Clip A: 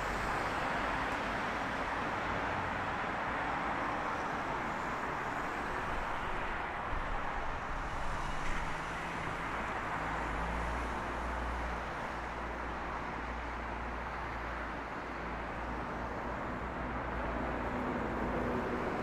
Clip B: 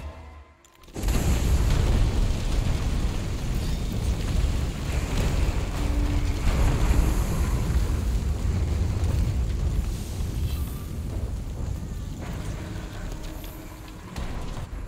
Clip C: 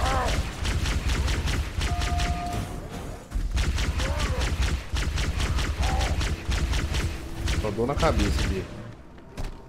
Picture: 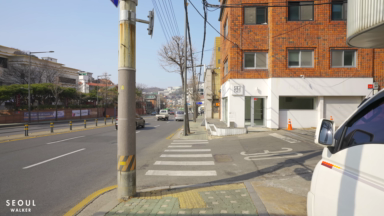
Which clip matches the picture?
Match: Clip A